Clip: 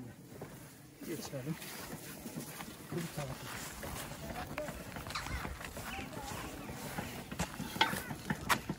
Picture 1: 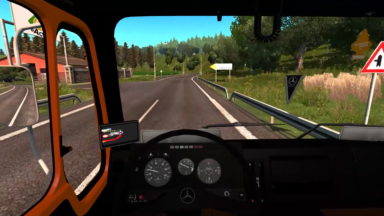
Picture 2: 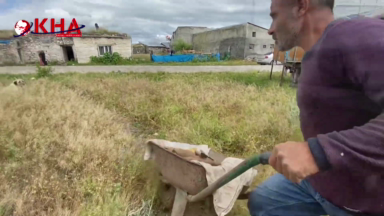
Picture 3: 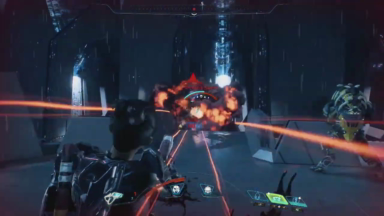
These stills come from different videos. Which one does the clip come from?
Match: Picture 2